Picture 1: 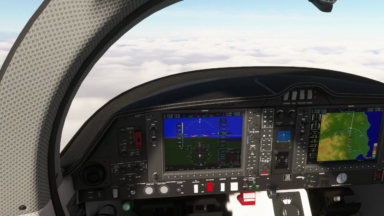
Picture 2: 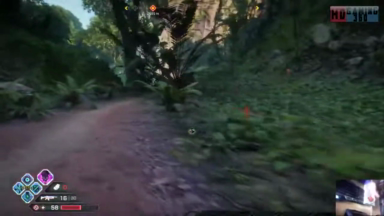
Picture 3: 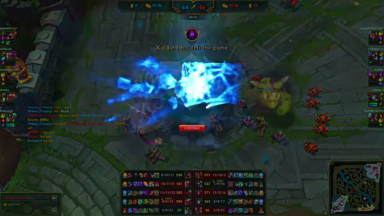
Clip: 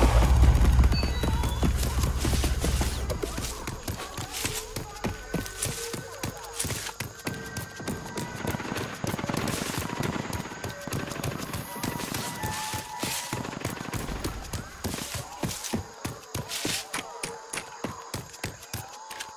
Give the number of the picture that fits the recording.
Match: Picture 2